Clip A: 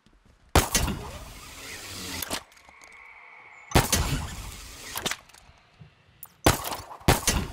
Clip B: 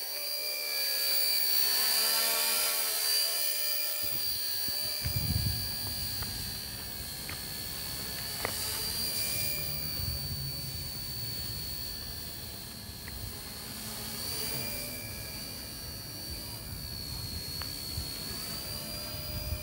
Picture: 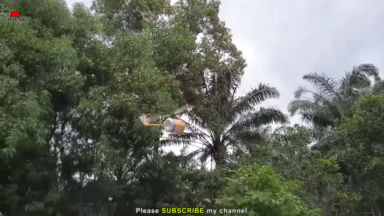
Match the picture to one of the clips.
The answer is B